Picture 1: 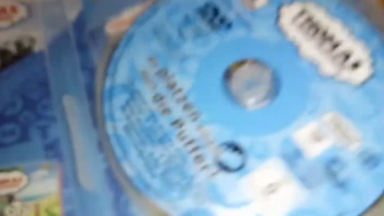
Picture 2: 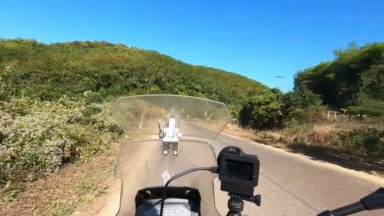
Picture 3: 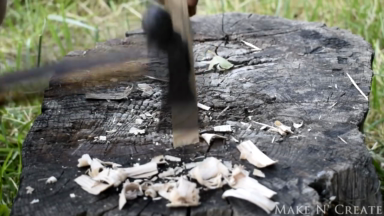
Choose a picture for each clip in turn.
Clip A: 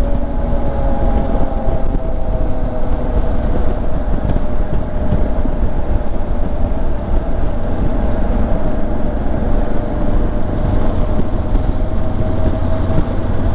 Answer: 2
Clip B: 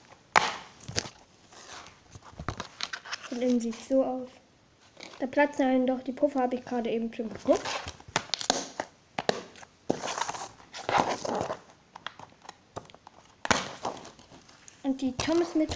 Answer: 1